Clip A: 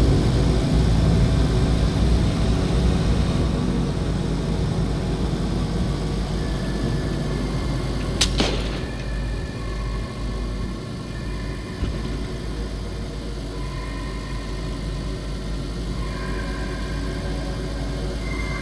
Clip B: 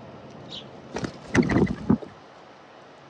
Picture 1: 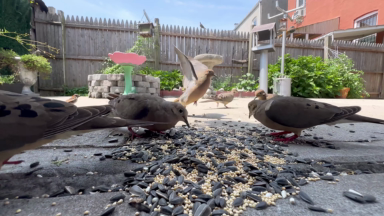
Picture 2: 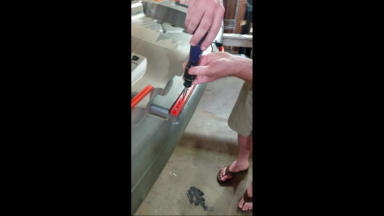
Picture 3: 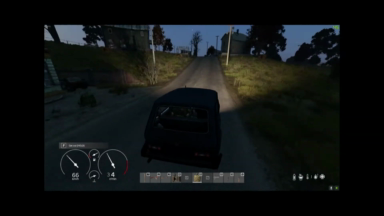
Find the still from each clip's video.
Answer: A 3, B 1